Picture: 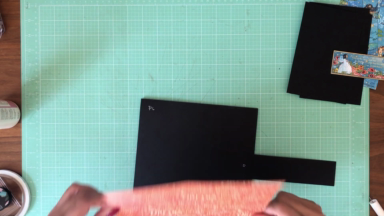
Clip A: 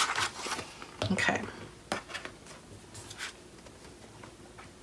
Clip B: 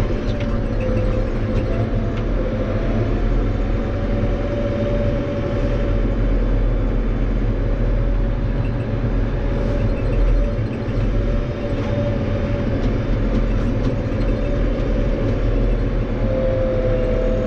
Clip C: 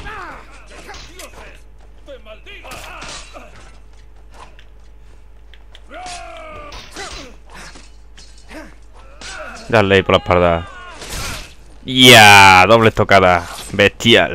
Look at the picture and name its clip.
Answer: A